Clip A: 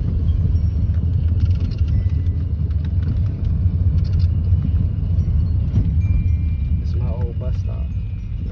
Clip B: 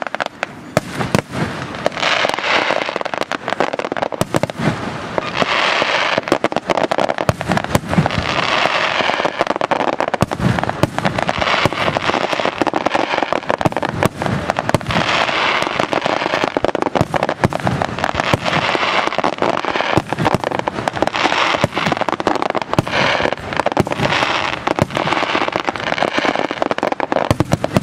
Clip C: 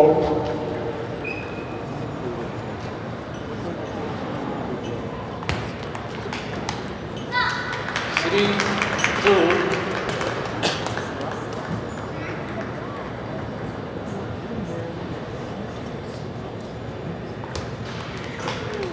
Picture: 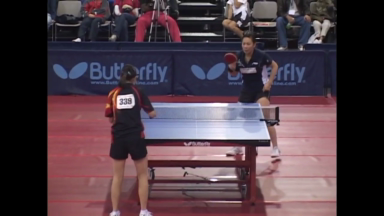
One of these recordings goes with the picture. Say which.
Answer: C